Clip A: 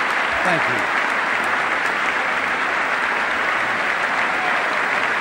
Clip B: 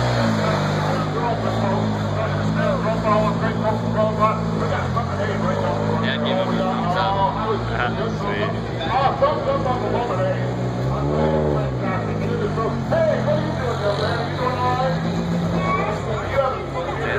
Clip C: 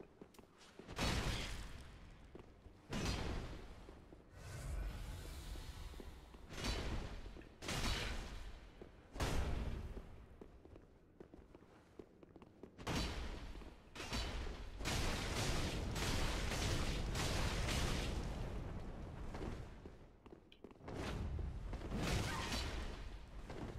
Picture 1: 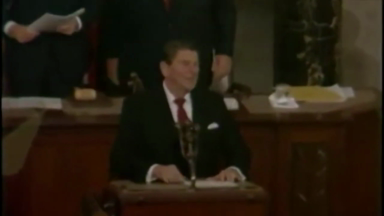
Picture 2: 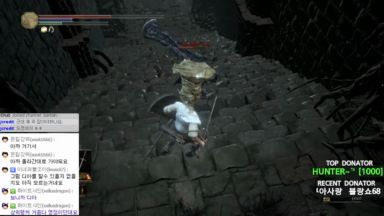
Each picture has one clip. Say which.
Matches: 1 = A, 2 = C